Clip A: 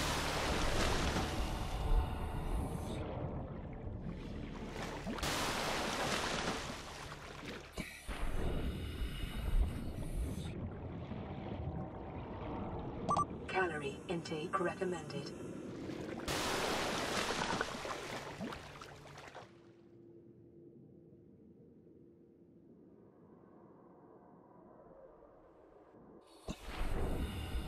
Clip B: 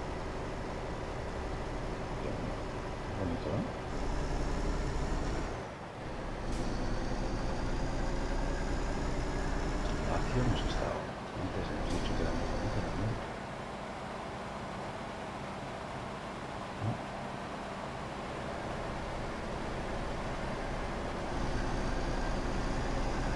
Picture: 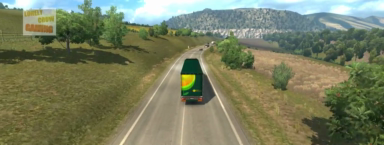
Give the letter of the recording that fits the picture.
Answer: B